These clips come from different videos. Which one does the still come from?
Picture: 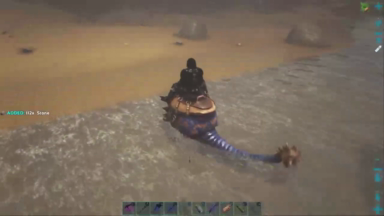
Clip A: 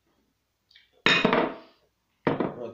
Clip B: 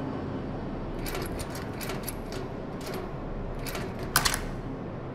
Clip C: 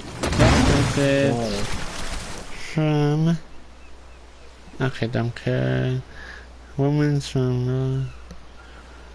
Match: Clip C